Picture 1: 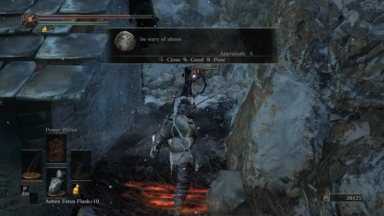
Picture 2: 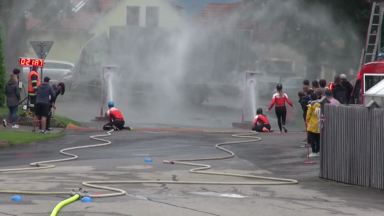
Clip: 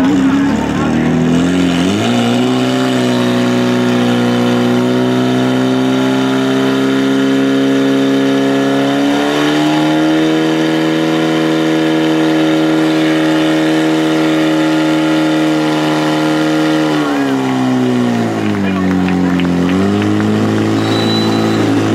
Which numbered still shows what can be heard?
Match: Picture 2